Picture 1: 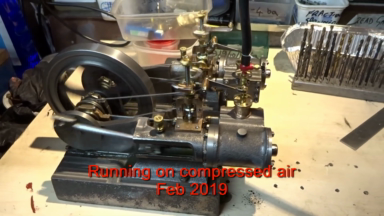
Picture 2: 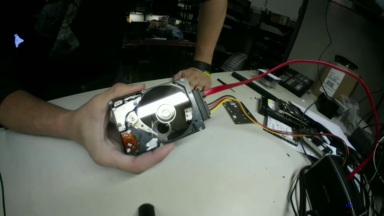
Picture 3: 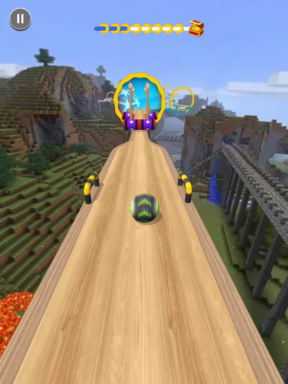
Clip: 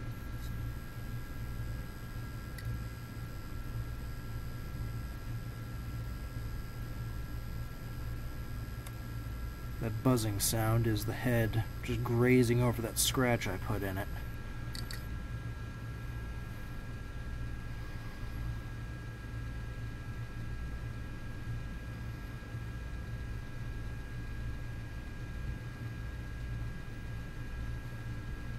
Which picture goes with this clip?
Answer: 2